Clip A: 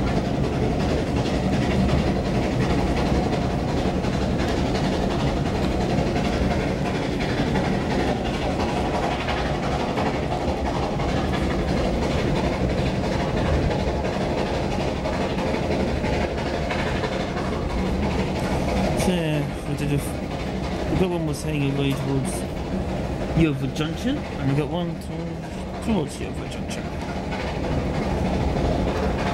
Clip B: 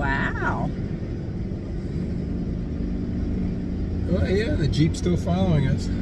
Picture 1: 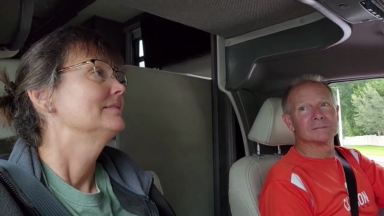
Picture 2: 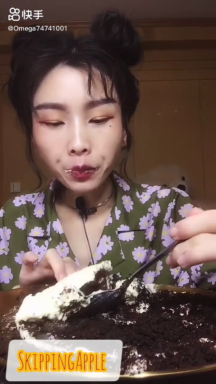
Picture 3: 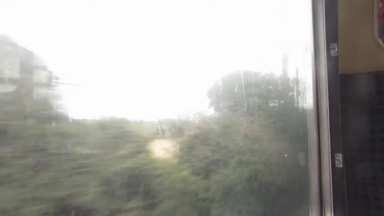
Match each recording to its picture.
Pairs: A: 3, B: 1